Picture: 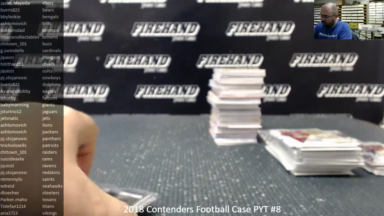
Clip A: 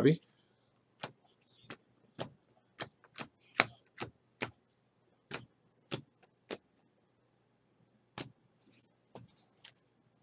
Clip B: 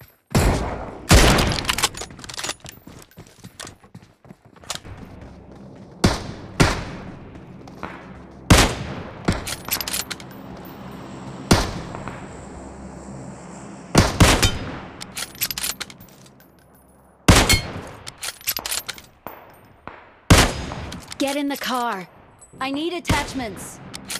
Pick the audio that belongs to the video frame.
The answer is A